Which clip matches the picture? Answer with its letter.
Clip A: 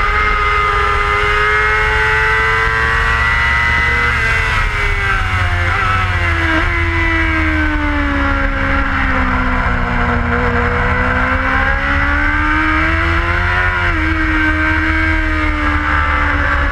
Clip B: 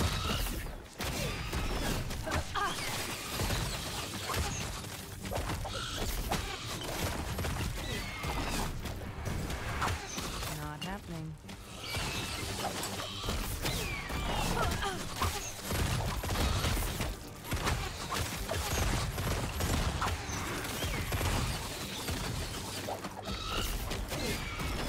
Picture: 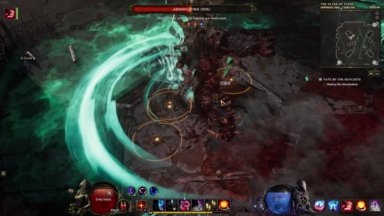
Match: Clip B